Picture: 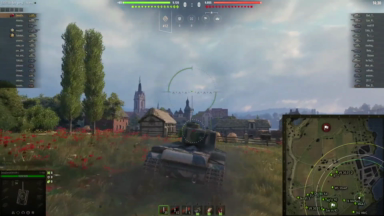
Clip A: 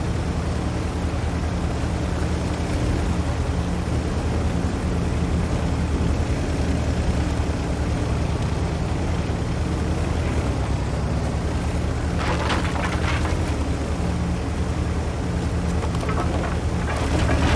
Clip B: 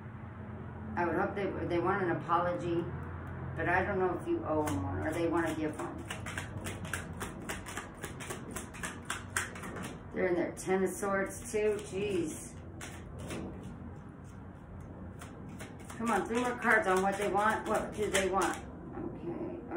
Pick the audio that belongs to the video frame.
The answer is A